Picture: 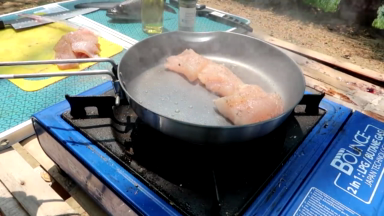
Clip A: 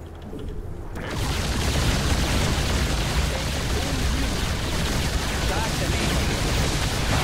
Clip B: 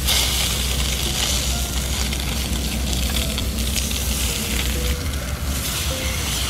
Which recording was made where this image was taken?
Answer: B